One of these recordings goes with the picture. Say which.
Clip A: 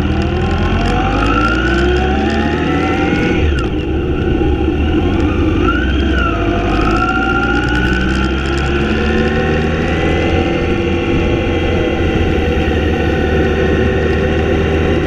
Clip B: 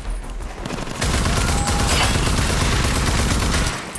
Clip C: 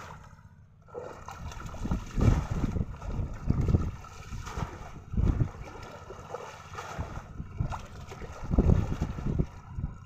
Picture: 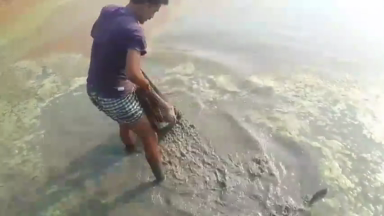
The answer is C